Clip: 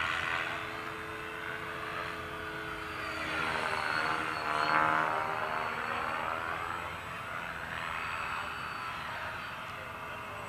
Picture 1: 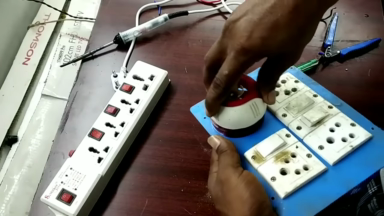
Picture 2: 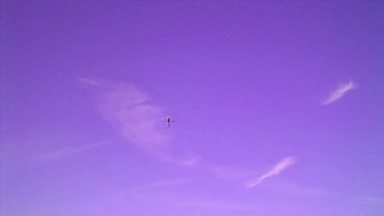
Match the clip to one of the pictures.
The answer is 2